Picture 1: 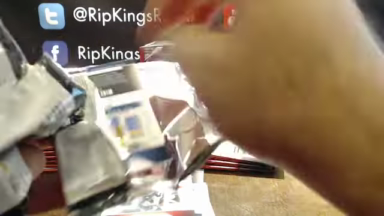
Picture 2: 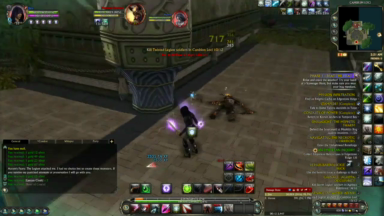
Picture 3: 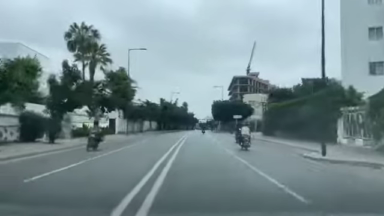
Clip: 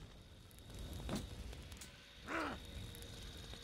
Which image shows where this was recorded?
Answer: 2